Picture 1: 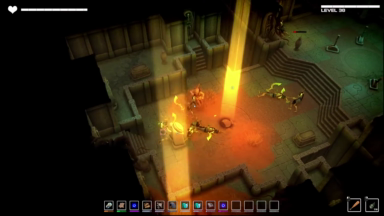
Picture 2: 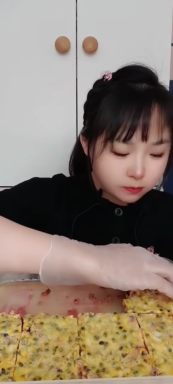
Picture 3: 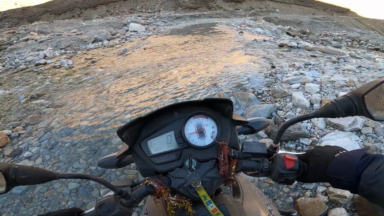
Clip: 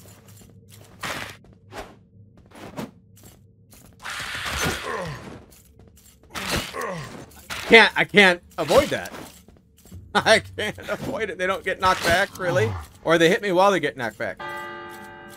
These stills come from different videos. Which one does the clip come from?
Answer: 1